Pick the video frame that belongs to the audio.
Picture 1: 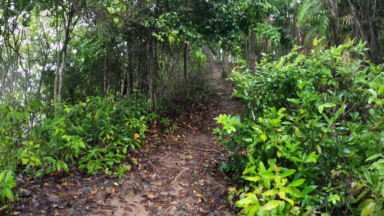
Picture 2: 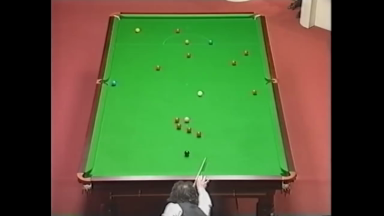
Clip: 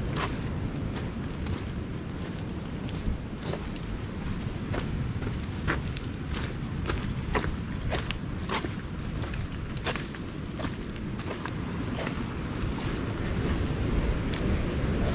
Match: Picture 1